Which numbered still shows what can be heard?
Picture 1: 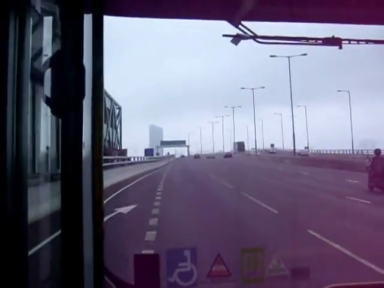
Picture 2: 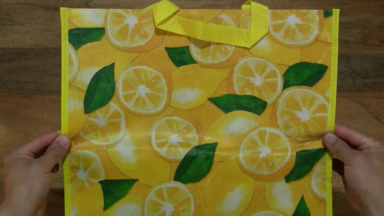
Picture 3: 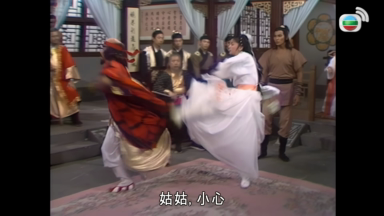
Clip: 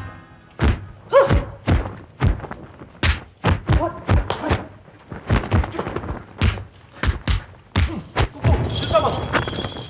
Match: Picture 3